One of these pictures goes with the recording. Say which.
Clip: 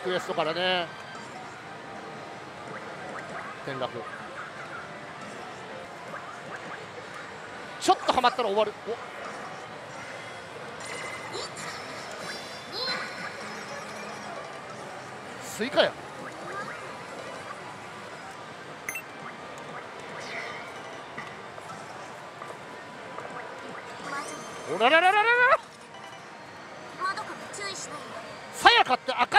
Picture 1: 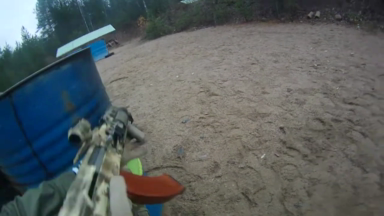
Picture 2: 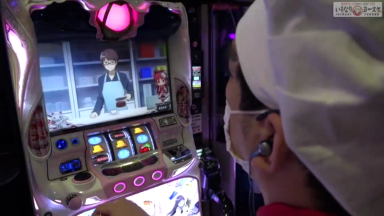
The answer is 2